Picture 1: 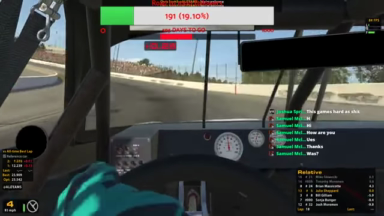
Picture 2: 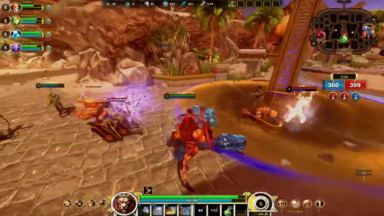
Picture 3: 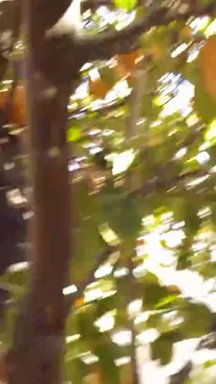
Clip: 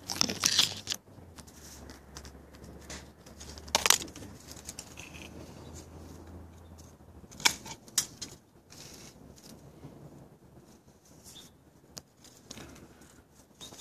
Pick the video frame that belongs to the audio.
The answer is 3